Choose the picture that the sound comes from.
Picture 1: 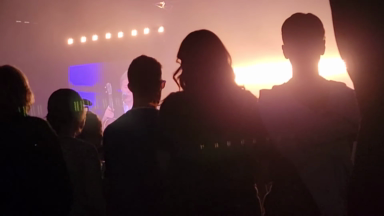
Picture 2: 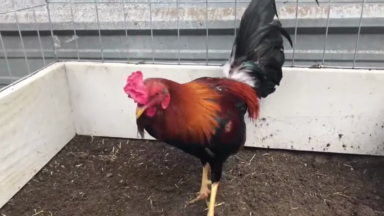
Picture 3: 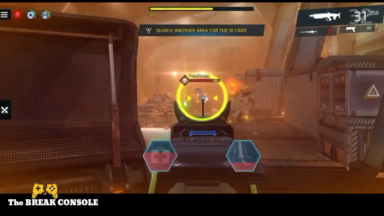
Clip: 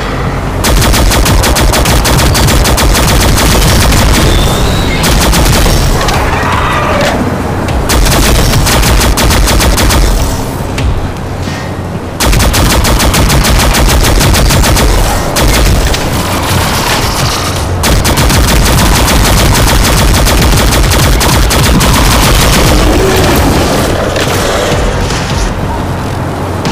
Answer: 3